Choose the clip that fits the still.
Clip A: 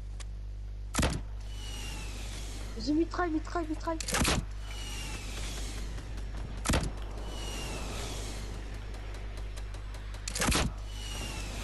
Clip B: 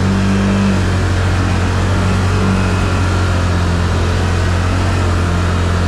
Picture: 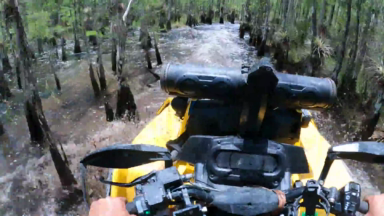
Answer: B